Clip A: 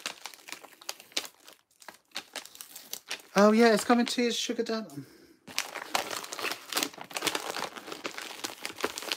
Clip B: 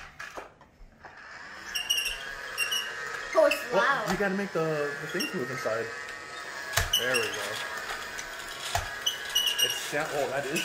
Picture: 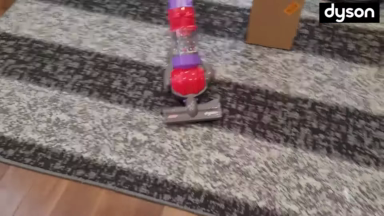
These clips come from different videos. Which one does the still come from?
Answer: B